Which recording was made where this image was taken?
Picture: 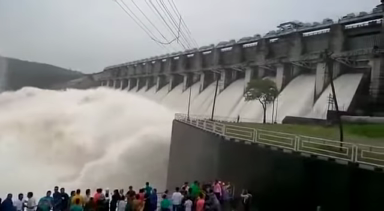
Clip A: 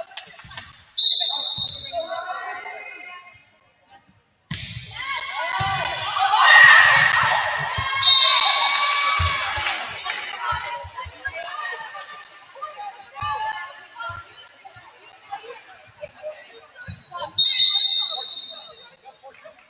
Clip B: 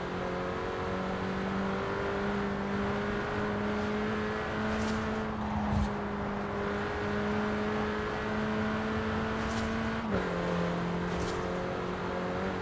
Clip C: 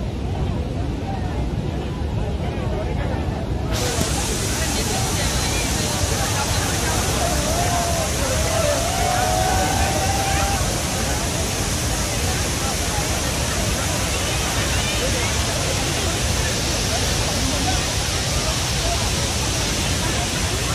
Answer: C